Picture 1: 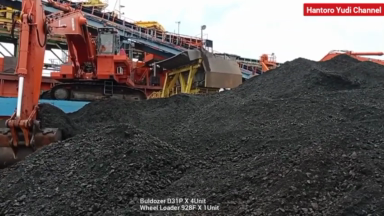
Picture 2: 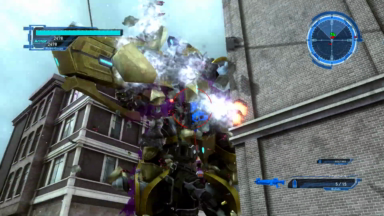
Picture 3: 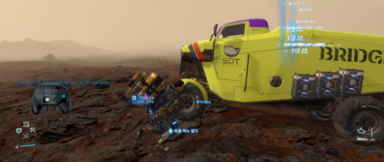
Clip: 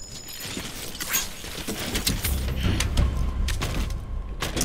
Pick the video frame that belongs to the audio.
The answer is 3